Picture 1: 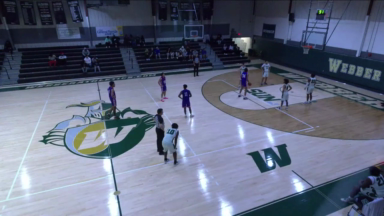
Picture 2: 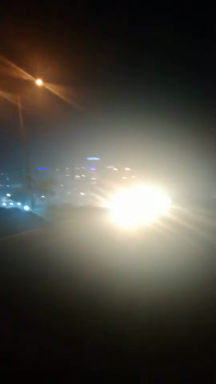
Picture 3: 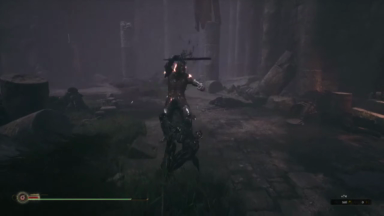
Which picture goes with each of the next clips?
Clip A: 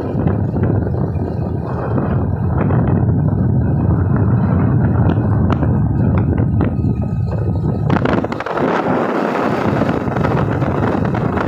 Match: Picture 2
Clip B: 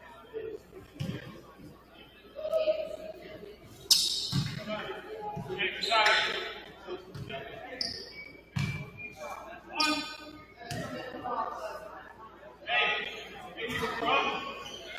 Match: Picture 1